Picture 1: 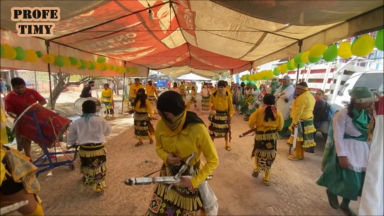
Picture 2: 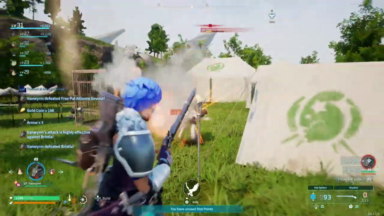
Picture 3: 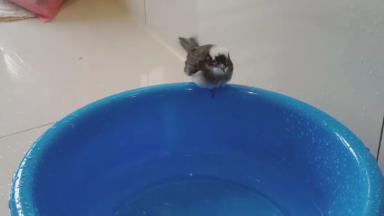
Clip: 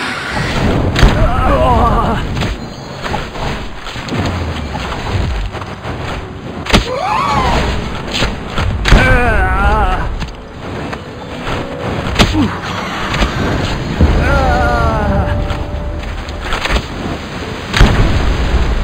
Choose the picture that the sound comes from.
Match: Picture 2